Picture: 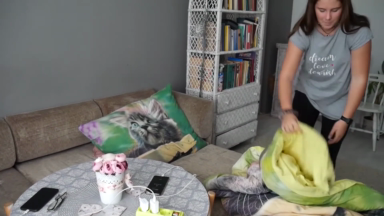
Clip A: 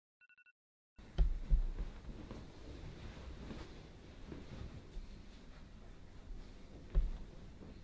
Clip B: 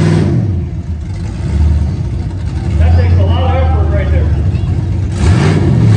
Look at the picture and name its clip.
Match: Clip A